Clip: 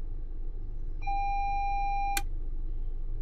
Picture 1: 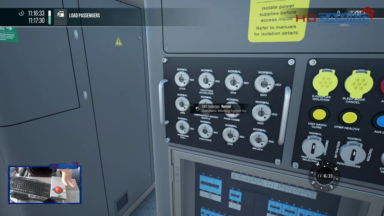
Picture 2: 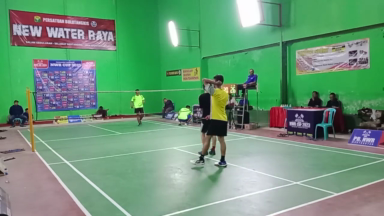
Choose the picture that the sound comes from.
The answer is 1